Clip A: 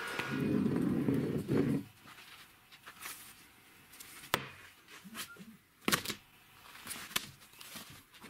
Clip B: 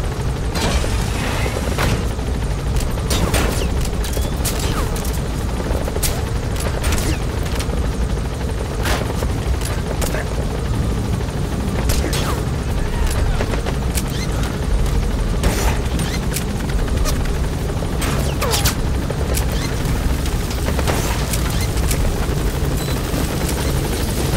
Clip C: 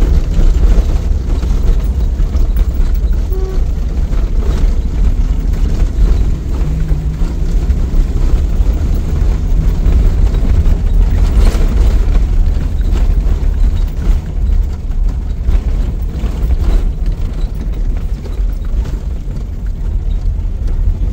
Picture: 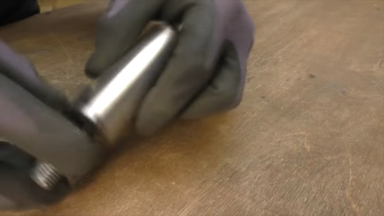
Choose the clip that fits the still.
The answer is A